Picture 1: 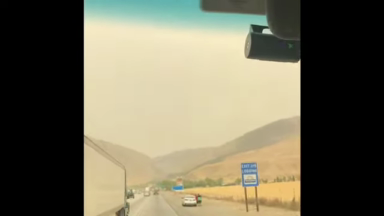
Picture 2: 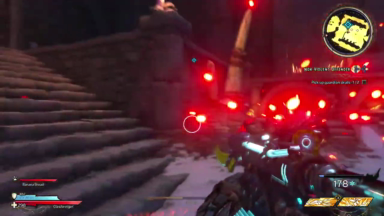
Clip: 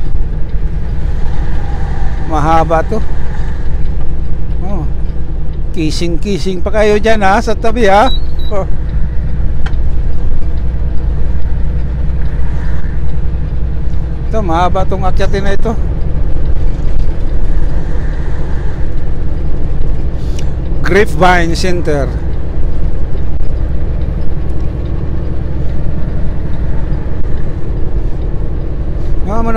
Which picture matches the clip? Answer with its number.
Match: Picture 1